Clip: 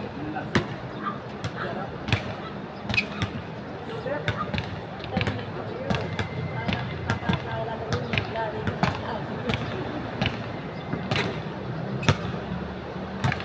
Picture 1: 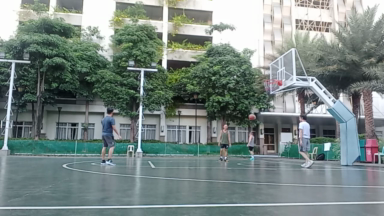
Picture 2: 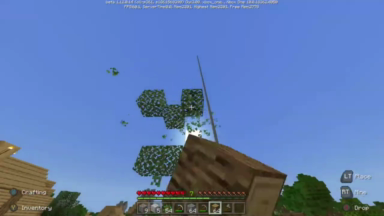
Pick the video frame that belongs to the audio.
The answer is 1